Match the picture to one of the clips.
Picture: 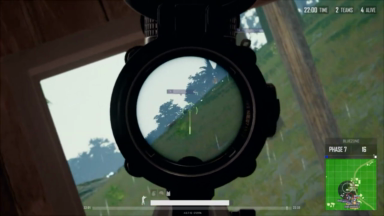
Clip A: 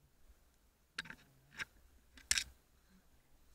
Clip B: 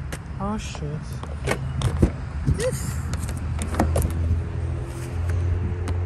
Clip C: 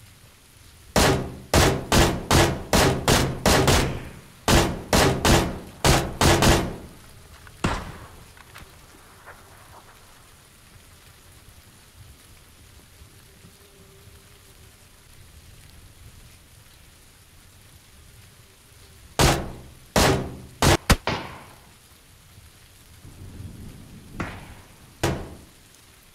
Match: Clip C